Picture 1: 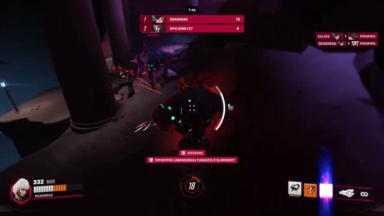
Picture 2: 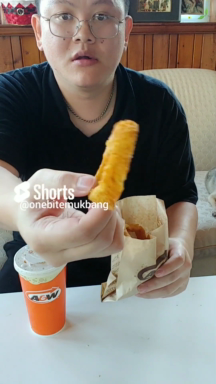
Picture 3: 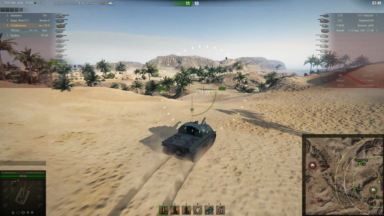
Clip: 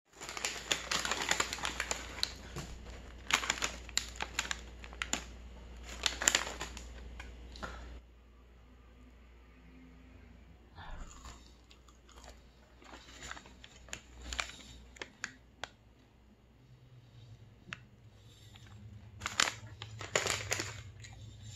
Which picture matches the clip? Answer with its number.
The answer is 2